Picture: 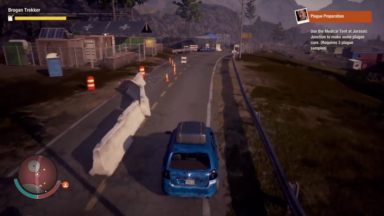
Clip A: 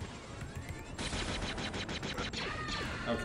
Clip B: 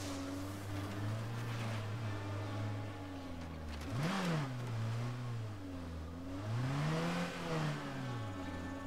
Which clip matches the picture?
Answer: B